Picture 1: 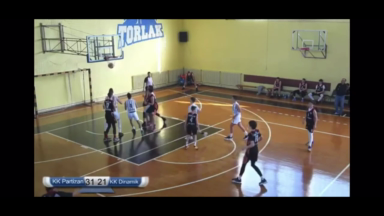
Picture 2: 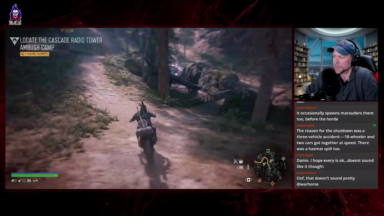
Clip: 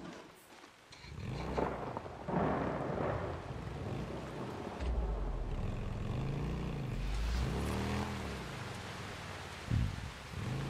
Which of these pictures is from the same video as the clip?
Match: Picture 2